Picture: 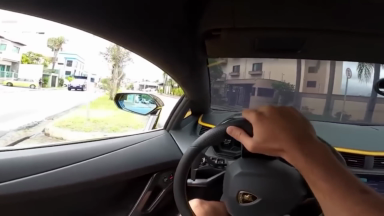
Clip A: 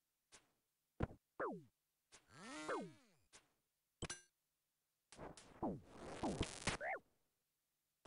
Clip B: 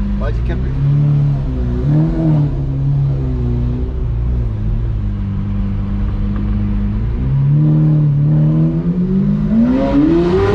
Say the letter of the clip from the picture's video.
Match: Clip B